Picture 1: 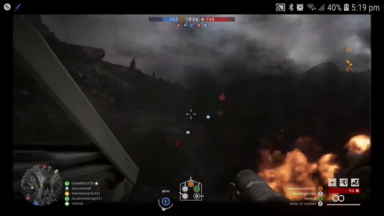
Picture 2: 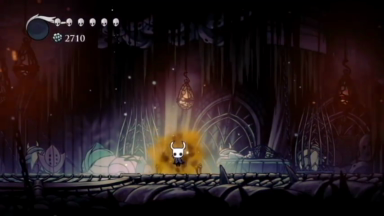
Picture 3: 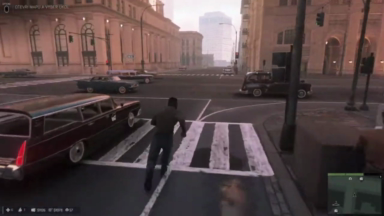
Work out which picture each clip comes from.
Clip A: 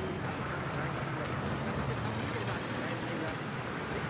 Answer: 3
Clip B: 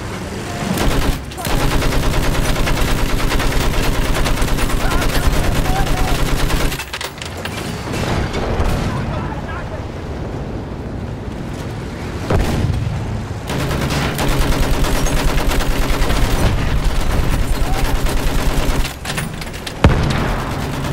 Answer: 1